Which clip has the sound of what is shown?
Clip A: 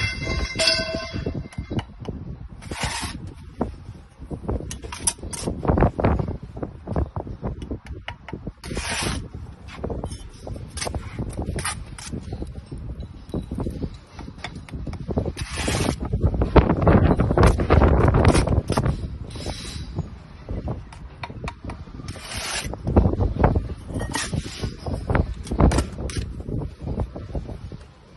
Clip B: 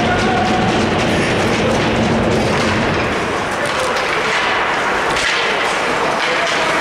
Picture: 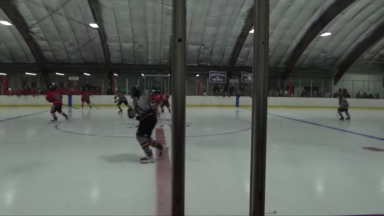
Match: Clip B